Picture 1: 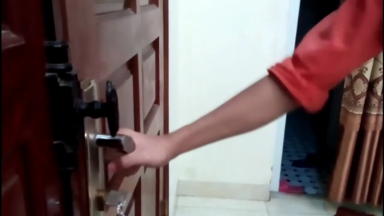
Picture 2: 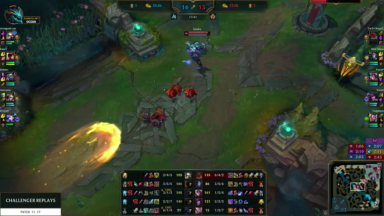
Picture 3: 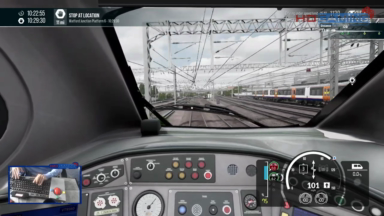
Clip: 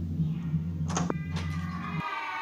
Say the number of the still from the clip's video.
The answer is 1